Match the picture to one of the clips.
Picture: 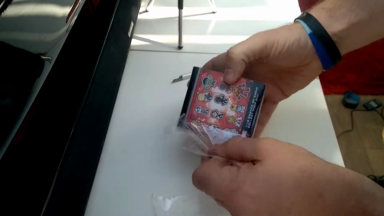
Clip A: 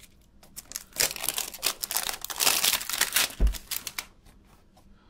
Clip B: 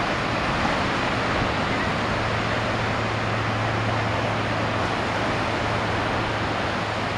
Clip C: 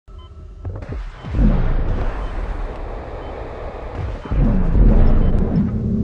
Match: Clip A